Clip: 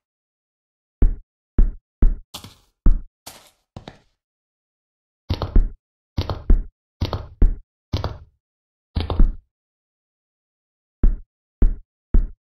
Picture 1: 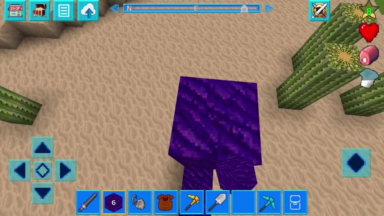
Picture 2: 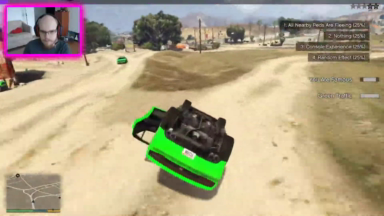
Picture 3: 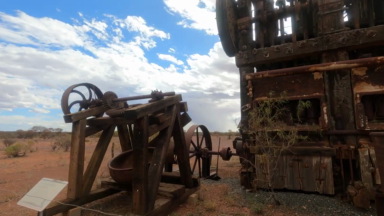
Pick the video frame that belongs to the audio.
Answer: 1